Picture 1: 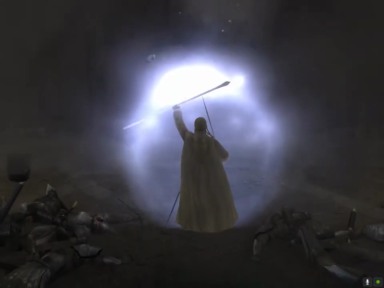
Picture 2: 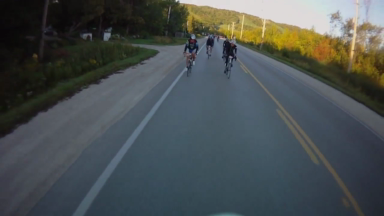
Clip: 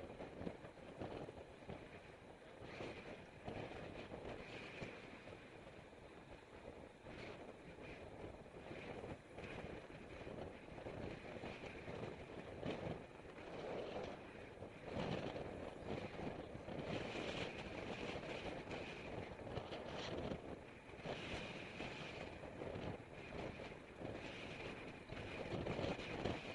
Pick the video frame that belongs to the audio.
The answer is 2